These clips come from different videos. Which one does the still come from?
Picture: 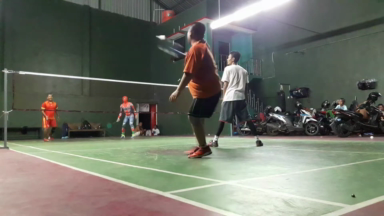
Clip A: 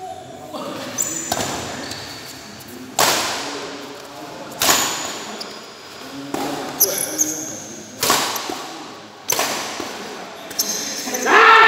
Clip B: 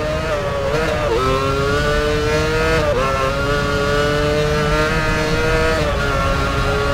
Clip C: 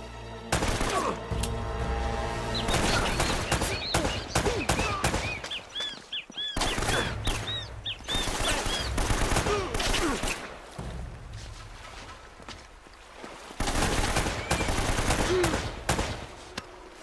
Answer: A